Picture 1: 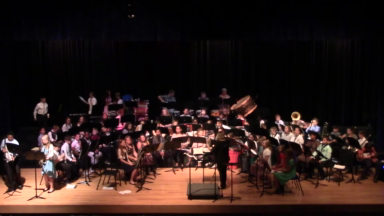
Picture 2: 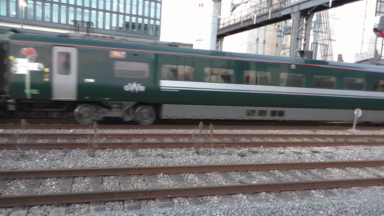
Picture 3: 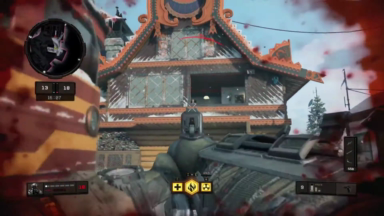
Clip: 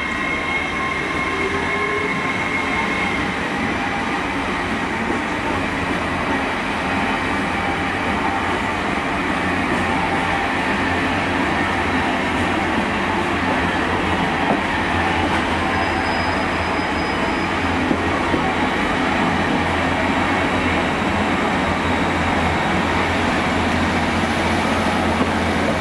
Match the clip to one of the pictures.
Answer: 2